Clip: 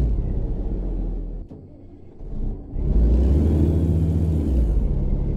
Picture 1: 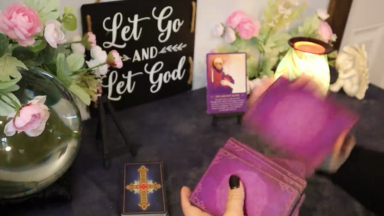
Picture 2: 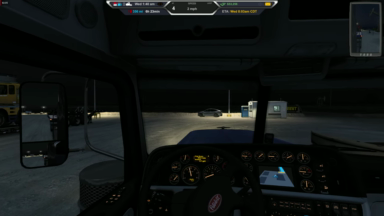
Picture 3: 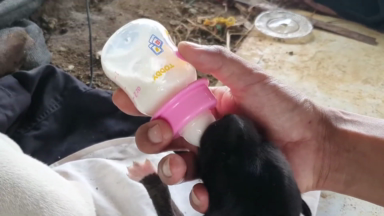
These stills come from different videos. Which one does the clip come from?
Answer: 2